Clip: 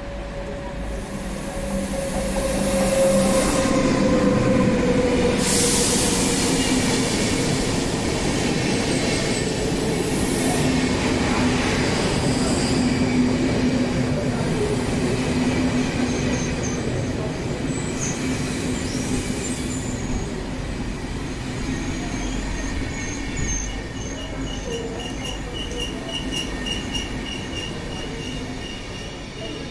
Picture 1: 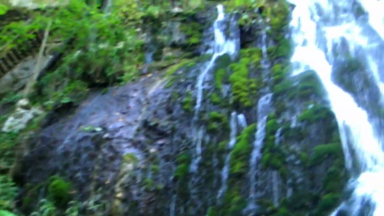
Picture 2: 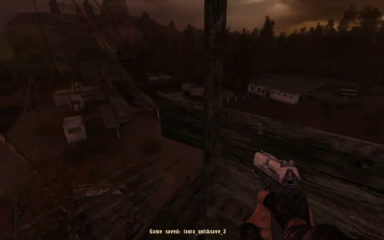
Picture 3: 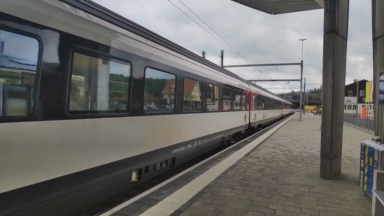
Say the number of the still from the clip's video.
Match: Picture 3